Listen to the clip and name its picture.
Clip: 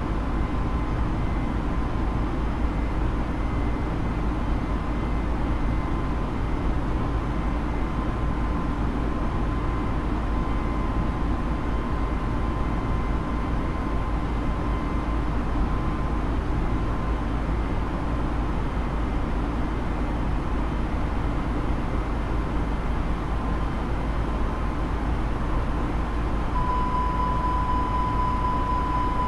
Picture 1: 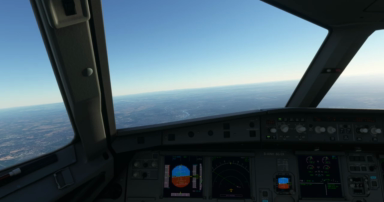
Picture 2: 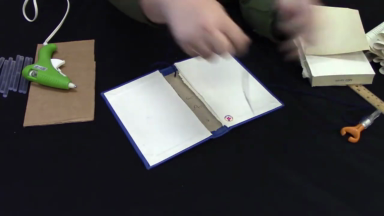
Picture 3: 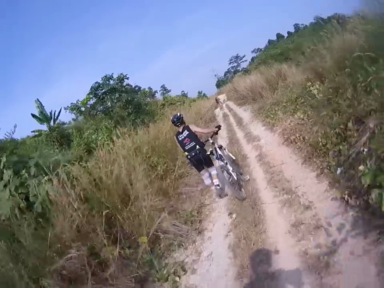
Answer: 1